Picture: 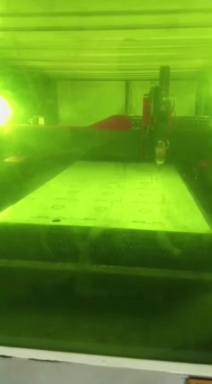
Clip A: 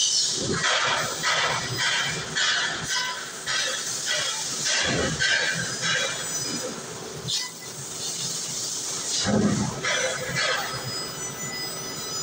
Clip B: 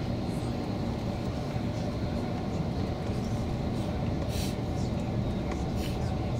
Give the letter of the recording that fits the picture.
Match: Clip A